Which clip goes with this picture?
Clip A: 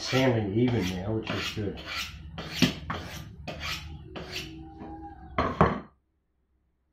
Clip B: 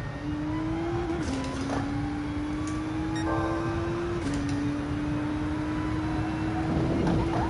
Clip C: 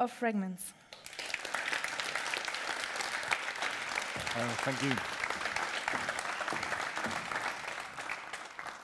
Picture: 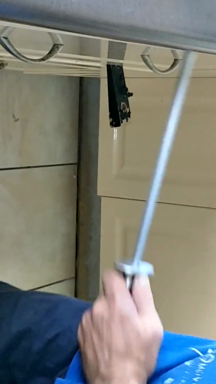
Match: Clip A